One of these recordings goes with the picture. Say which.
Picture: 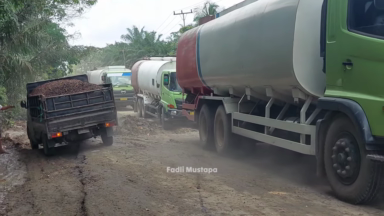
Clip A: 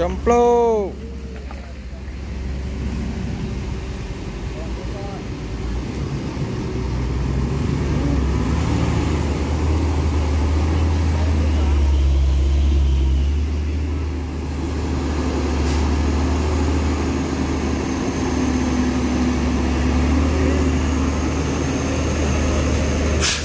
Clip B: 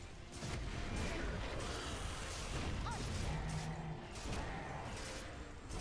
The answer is A